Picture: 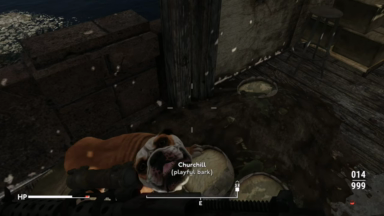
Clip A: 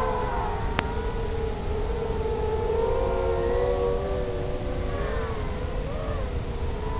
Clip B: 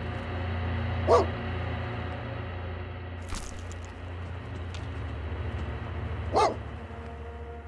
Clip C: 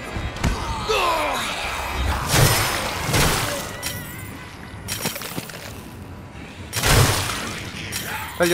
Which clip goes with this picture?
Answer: B